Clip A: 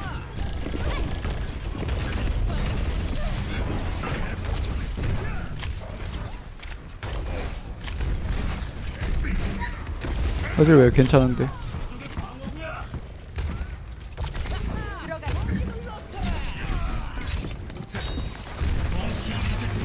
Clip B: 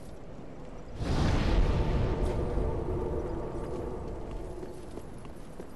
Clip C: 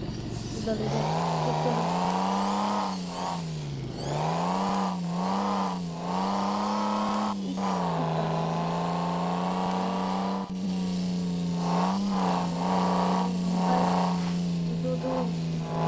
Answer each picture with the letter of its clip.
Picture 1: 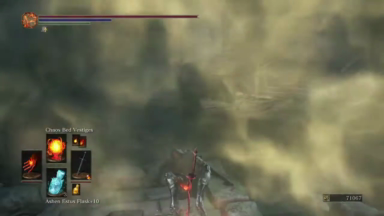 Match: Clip B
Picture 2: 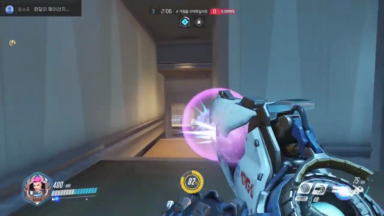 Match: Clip A